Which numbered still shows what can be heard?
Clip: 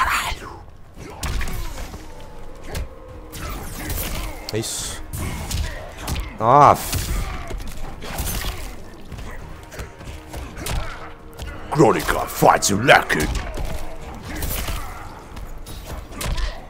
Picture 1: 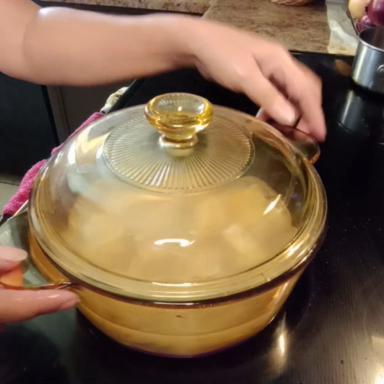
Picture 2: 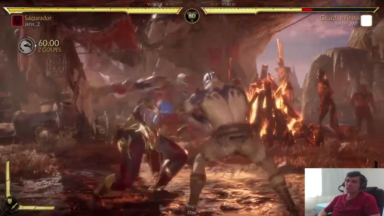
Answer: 2